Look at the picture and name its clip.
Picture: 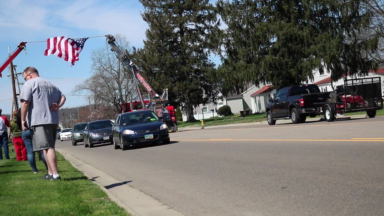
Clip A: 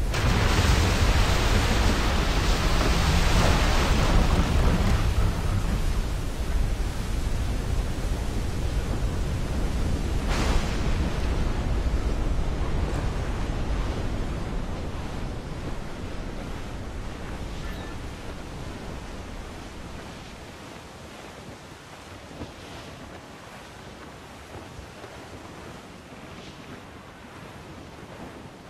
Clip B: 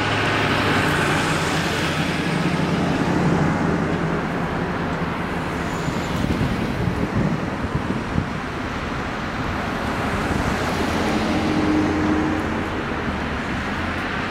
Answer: B